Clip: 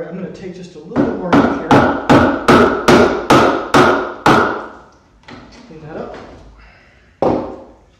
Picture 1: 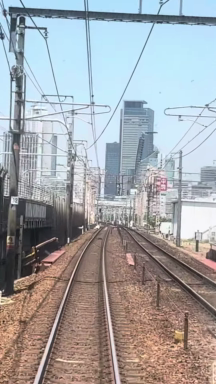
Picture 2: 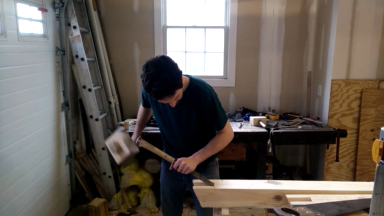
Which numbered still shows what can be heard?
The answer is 2